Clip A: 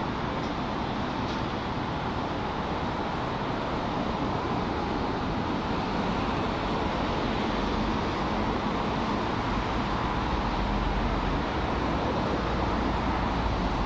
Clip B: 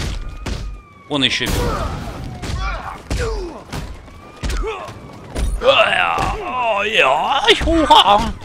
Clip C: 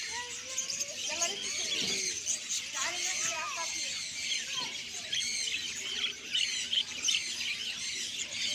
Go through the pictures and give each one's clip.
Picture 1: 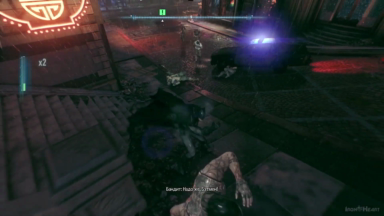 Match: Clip B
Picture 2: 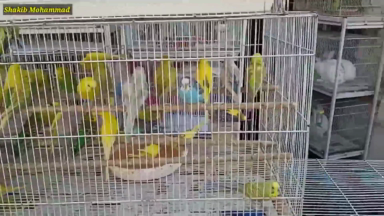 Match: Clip C